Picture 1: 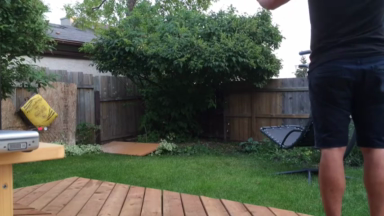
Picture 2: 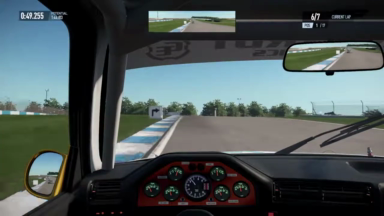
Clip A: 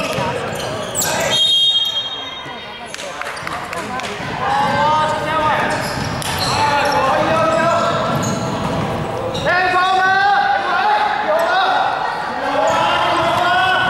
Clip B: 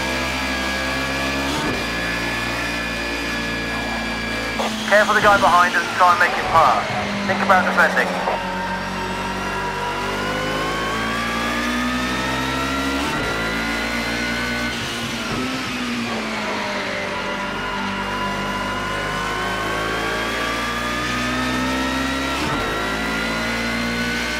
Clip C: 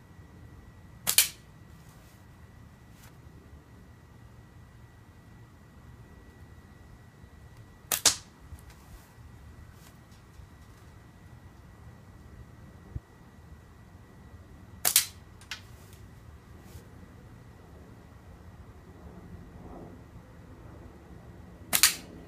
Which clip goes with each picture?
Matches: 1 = C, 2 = B